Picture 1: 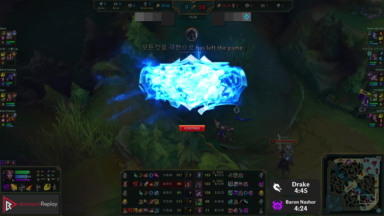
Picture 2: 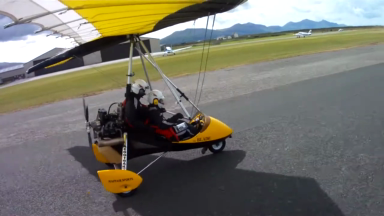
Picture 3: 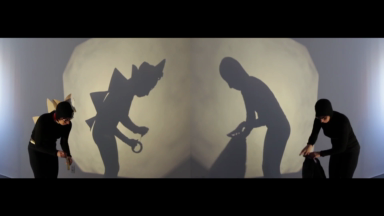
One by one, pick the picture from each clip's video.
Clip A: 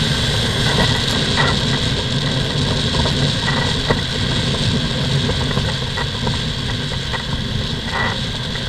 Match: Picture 2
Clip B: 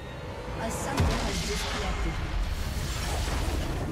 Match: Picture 1